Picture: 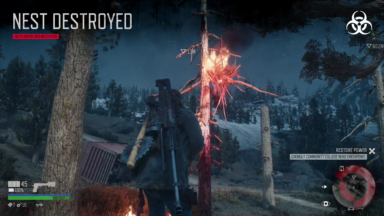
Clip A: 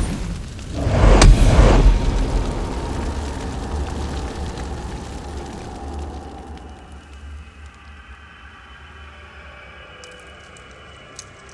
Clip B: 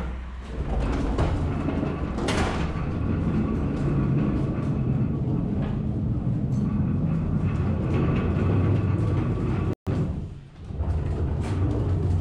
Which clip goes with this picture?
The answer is A